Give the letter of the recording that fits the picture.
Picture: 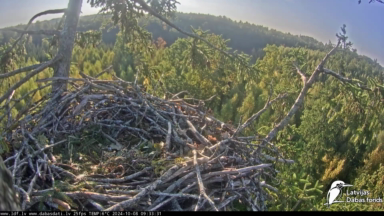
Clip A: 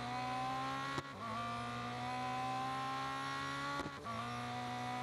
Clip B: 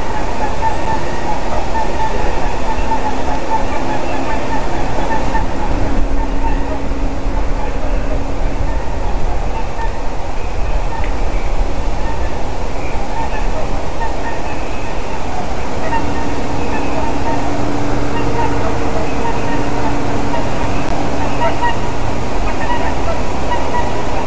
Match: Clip B